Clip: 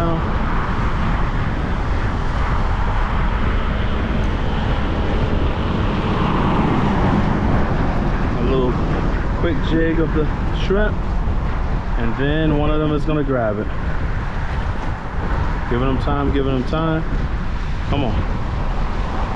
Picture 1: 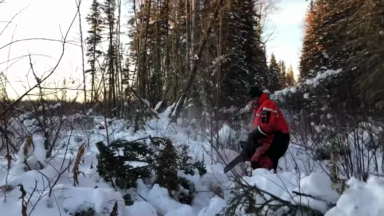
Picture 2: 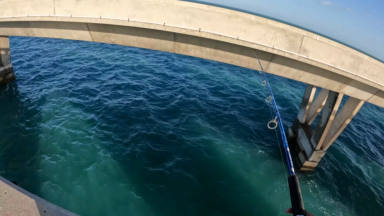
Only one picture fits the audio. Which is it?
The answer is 2